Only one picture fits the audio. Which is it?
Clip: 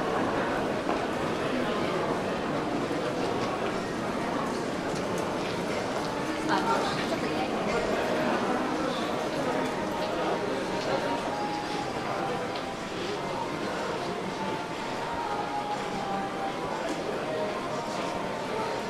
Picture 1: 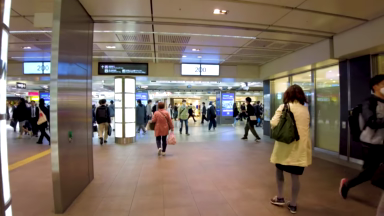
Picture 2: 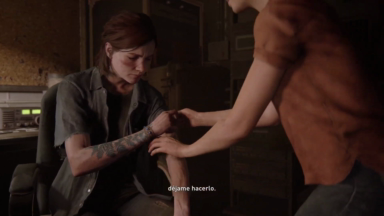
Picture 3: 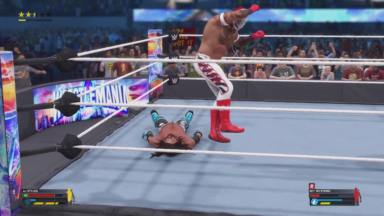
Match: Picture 1